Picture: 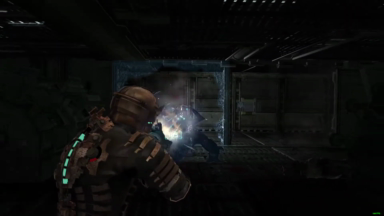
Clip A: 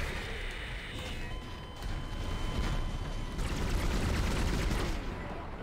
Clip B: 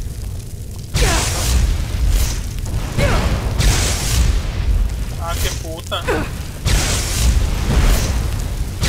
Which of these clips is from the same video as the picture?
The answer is A